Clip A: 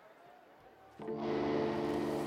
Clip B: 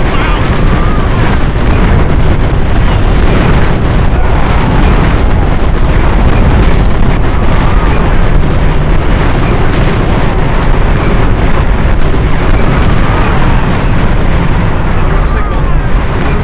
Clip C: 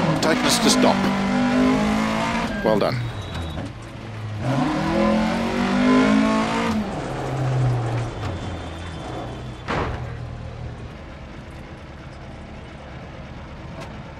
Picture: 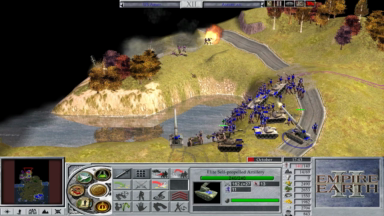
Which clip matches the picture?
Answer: B